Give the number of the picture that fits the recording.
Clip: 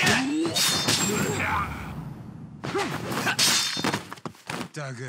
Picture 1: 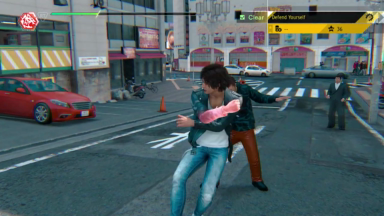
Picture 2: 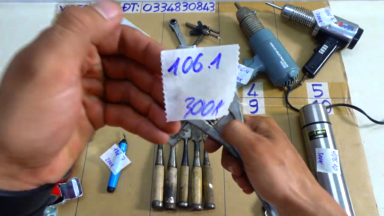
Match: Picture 1